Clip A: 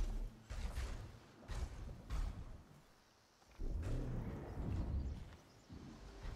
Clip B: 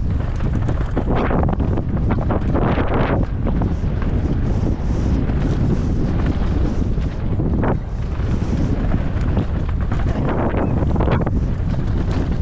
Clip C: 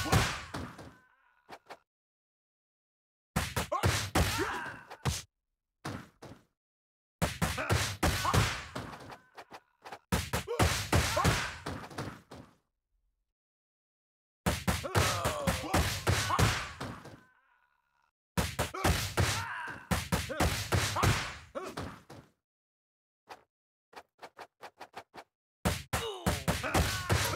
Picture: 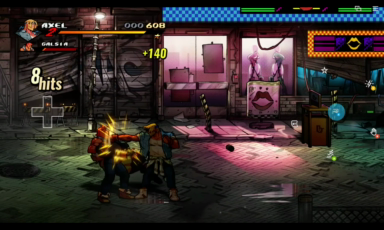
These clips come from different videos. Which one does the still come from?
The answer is C